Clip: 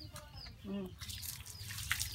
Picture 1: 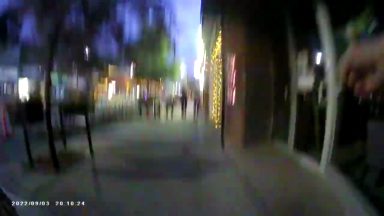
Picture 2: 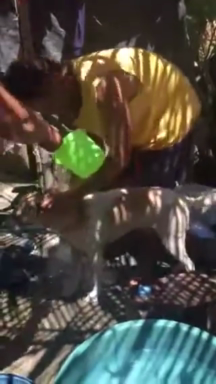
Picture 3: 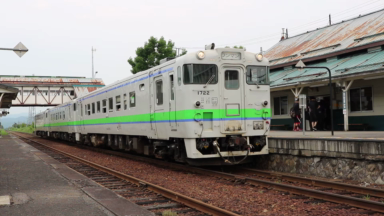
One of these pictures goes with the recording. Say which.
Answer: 2